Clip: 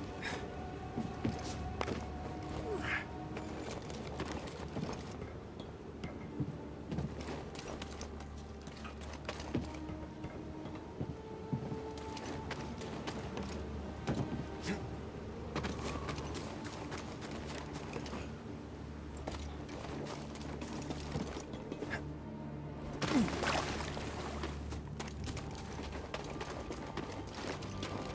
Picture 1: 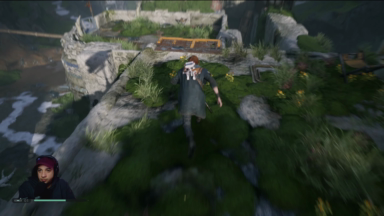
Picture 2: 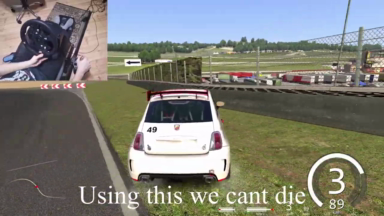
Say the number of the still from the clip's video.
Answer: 1